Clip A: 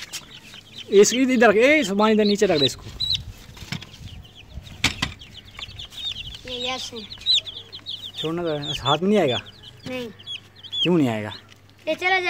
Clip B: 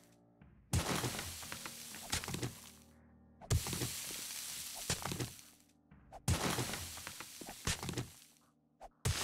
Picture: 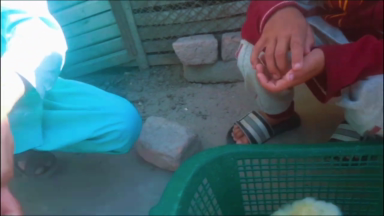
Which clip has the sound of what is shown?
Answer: A